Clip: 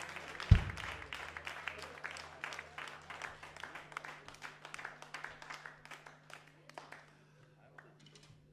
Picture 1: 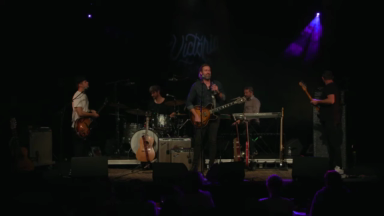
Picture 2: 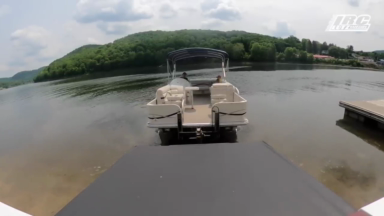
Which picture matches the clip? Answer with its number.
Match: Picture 1